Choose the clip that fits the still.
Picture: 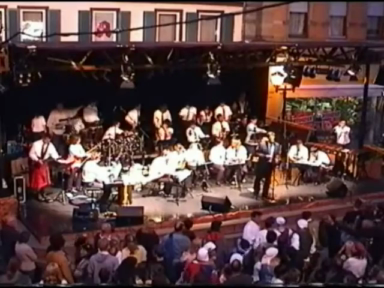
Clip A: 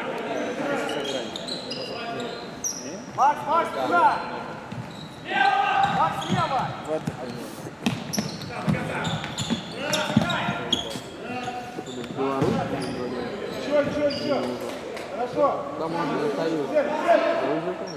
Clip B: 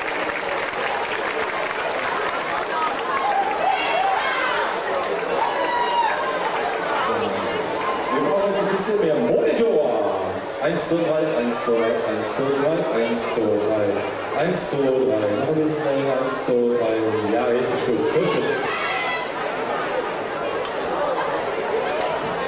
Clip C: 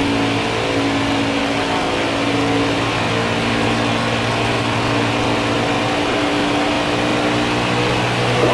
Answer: B